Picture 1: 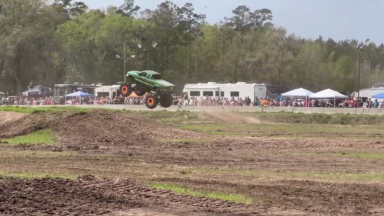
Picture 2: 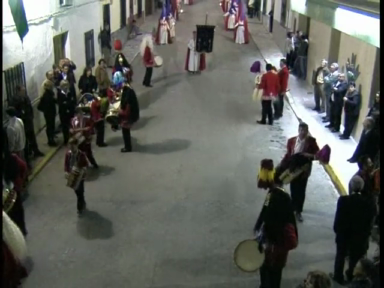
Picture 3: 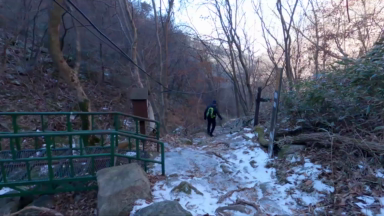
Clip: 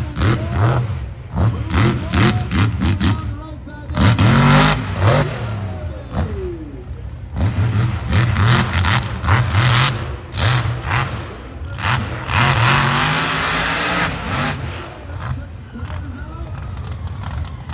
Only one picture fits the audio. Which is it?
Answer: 1